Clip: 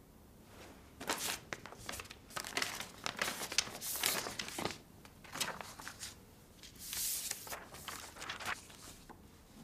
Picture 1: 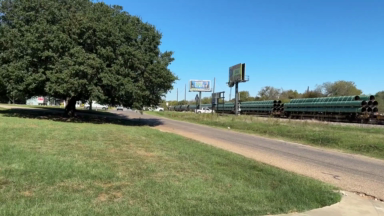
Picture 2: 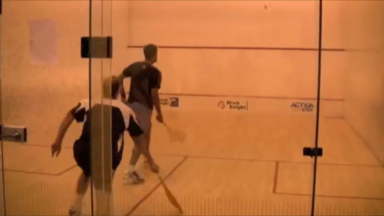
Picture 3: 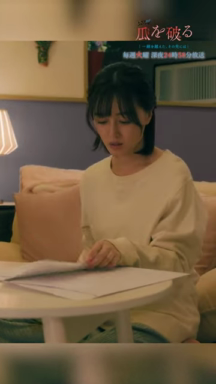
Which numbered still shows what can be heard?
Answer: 3